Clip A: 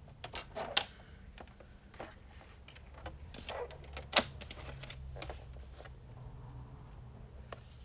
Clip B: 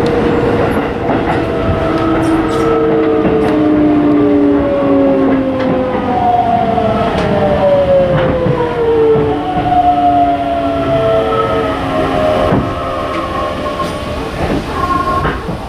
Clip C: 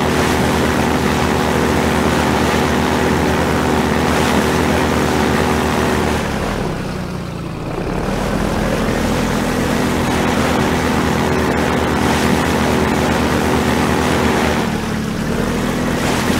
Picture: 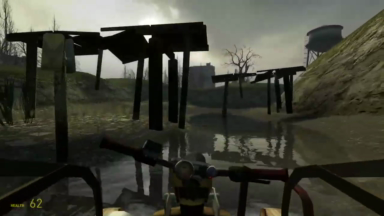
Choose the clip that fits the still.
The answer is C